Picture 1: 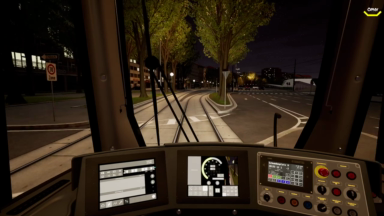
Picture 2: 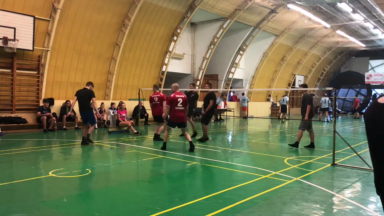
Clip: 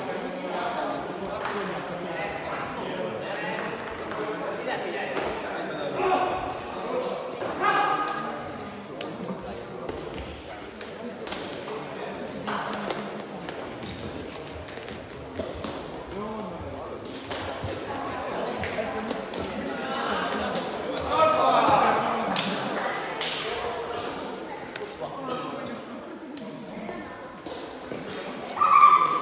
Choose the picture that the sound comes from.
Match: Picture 2